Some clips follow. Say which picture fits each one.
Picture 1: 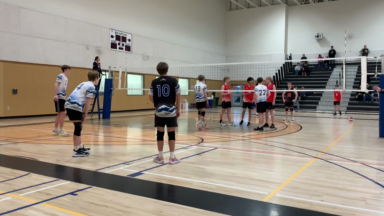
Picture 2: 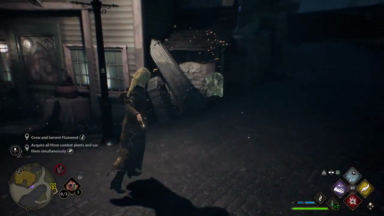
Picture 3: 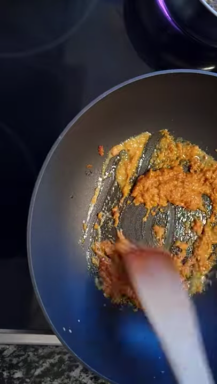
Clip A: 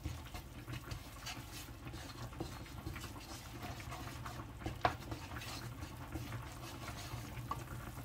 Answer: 3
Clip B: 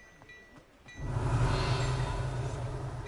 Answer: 2